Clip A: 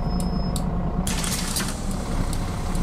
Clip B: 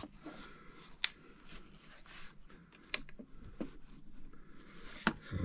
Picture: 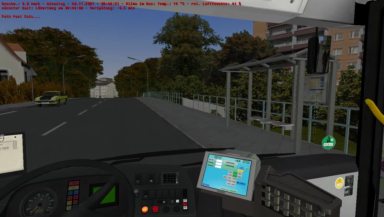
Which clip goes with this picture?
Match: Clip A